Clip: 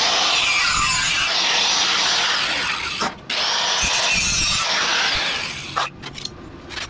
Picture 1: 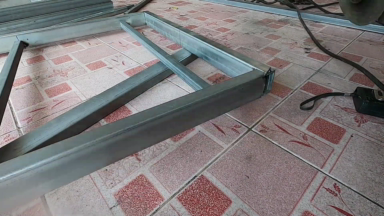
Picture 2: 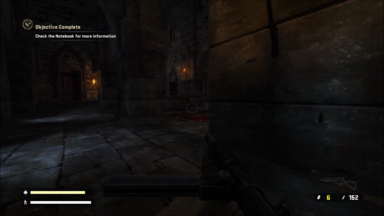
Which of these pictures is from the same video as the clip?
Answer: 1